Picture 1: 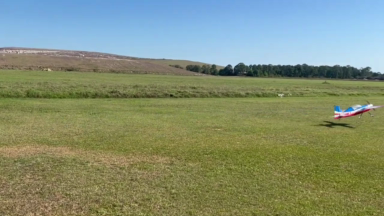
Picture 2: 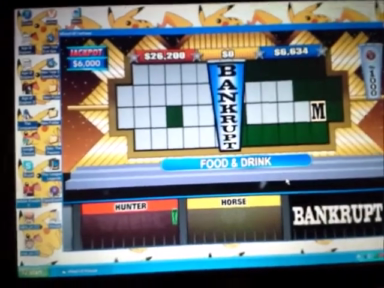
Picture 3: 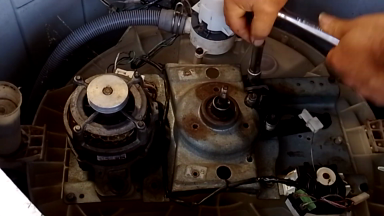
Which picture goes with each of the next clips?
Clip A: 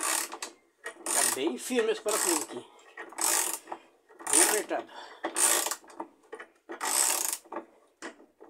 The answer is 3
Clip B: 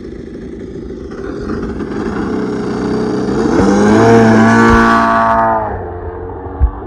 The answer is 1